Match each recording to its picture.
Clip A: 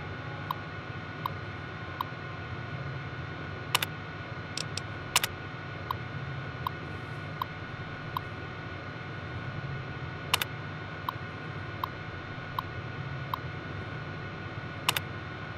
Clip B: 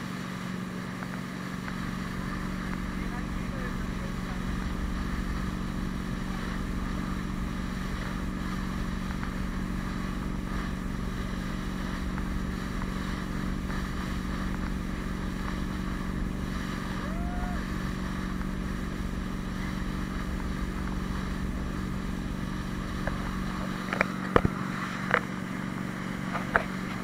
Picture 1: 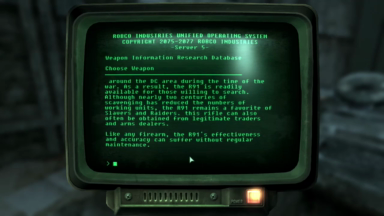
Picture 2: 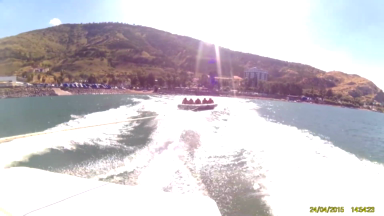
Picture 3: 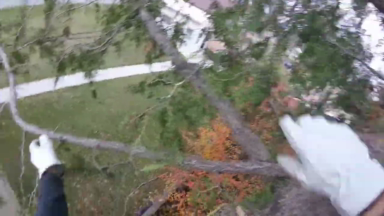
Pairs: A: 1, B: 2